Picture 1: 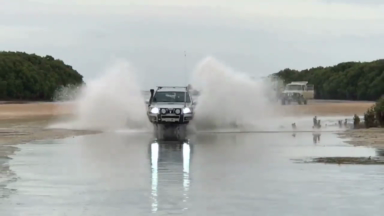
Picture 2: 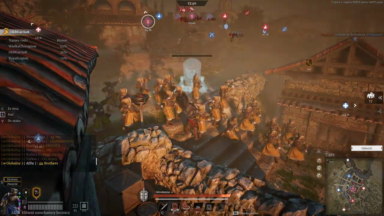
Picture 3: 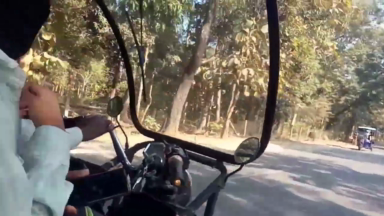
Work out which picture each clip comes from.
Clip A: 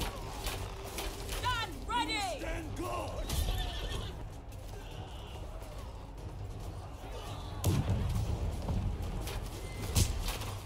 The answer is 2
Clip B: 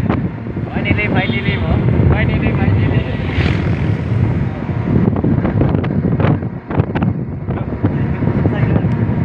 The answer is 3